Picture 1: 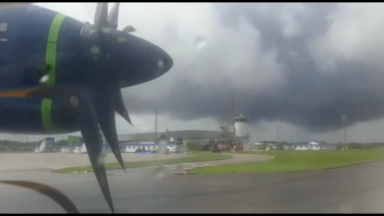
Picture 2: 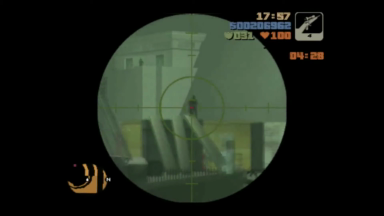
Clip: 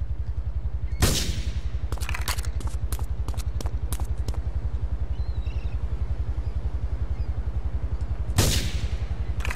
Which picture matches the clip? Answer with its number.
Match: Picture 2